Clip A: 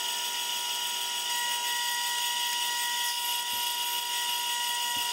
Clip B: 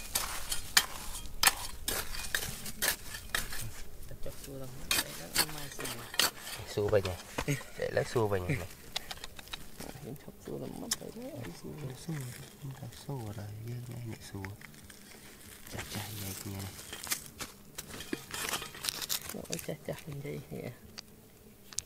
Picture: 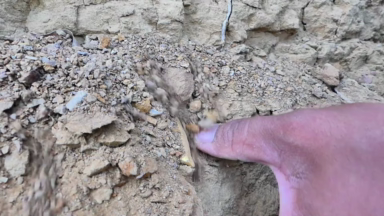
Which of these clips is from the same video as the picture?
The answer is B